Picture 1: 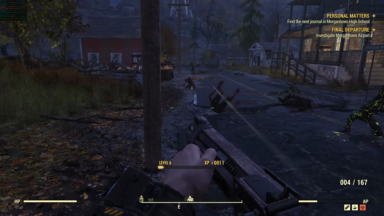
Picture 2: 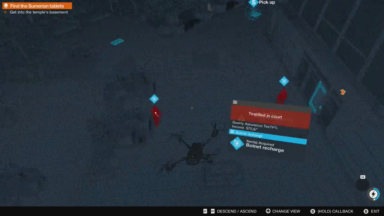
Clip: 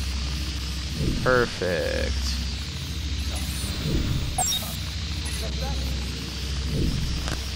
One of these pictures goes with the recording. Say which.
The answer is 2